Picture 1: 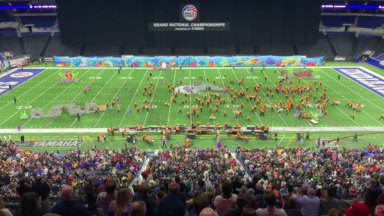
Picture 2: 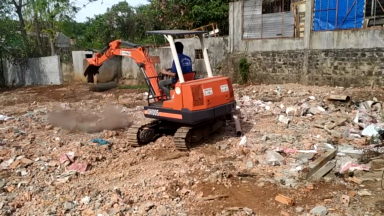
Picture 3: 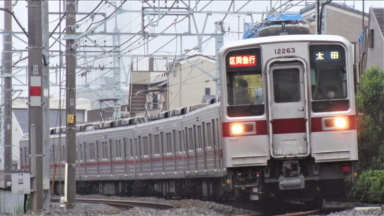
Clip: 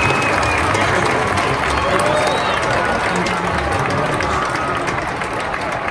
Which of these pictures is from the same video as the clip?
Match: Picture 1